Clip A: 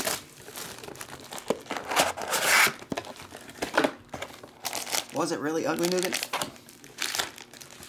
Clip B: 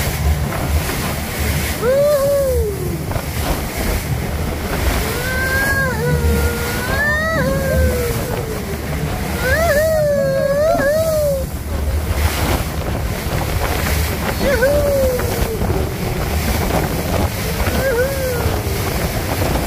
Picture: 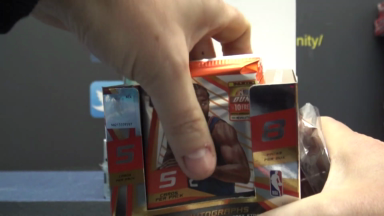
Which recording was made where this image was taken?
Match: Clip A